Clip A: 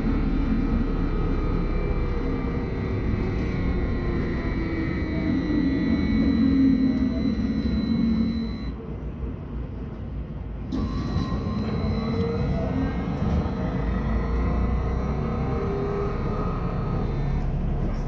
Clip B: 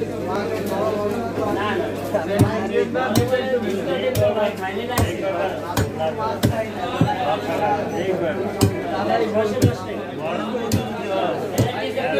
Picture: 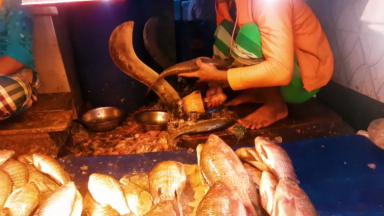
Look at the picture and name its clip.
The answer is B